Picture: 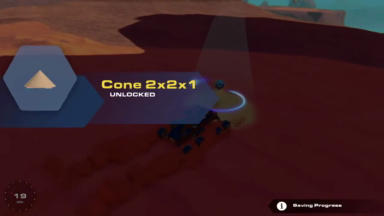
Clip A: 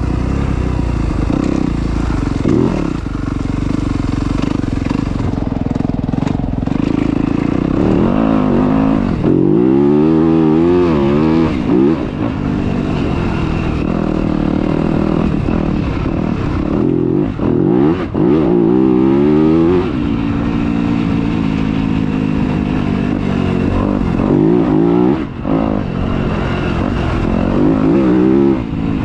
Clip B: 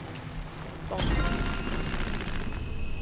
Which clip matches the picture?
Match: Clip B